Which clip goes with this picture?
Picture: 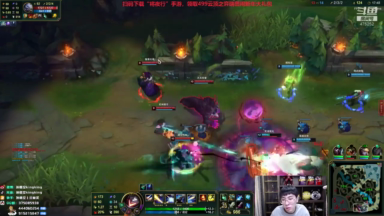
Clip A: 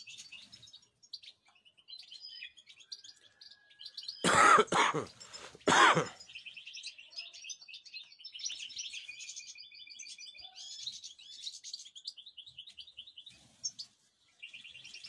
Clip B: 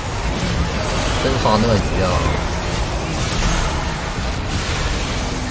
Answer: B